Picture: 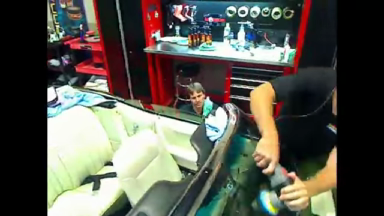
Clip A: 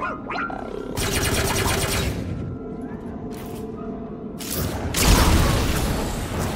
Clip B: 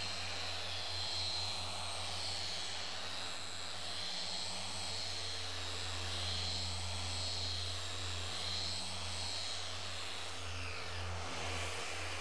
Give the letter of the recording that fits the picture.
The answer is B